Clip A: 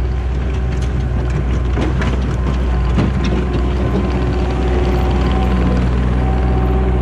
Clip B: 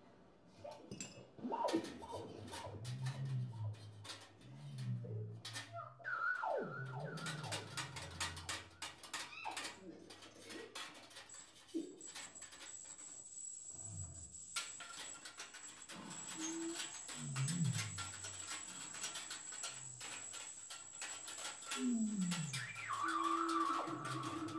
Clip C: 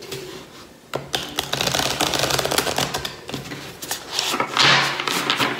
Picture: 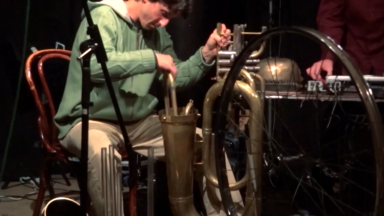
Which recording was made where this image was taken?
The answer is B